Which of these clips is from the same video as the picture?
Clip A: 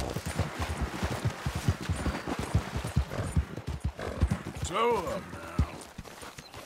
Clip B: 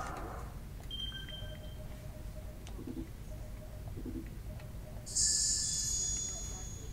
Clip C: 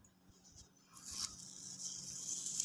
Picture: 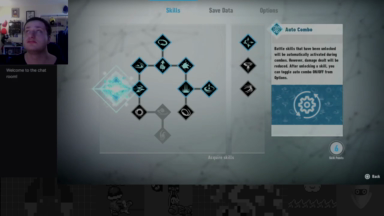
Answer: B